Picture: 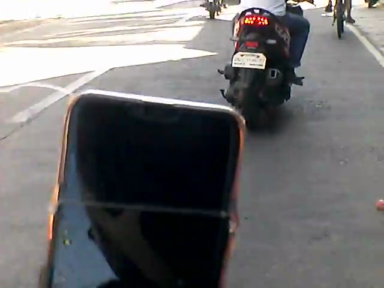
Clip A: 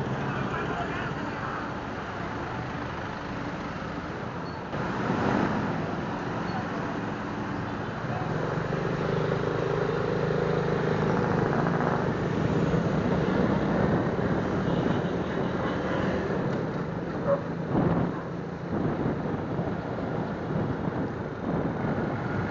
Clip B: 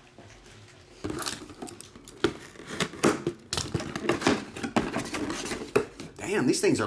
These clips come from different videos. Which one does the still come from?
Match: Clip A